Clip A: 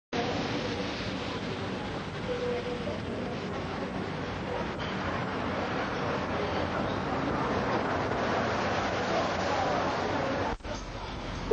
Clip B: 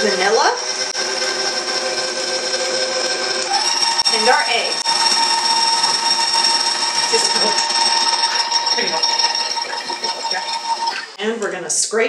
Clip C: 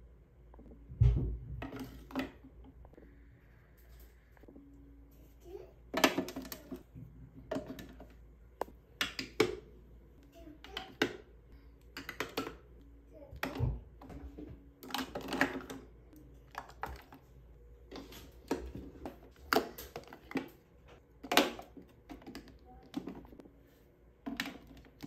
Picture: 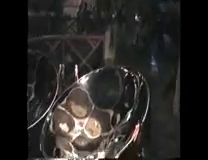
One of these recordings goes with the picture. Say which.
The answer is A